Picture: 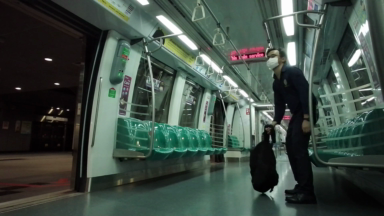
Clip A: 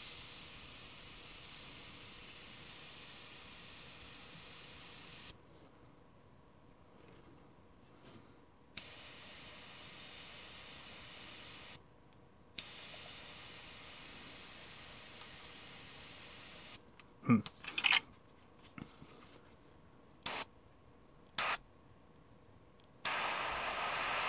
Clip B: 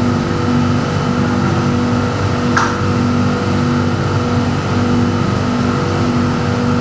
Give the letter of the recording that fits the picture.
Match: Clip B